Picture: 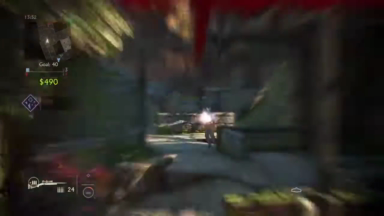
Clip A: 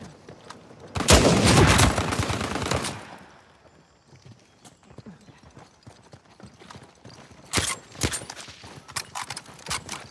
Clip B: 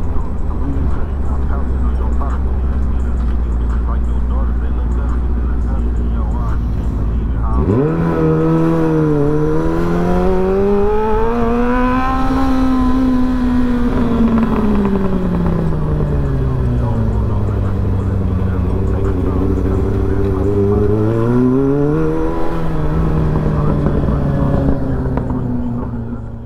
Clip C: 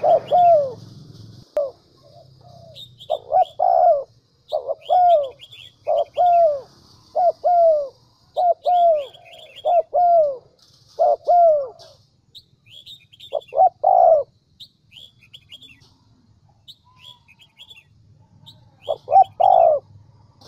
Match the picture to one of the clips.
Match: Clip A